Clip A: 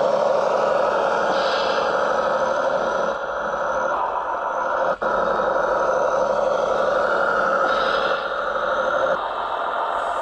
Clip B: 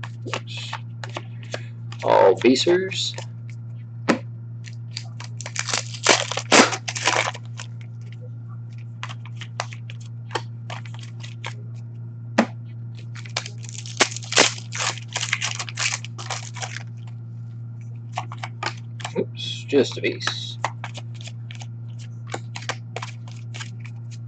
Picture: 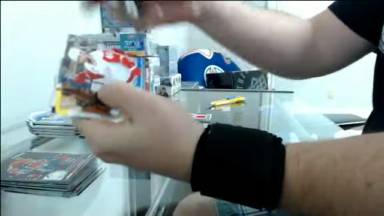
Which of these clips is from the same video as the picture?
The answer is B